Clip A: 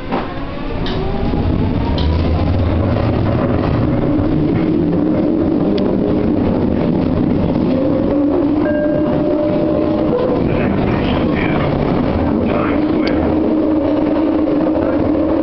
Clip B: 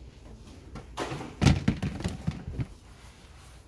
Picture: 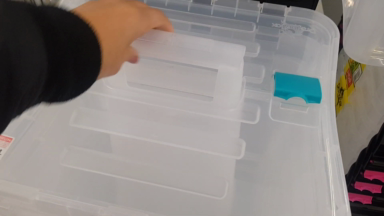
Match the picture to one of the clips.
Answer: B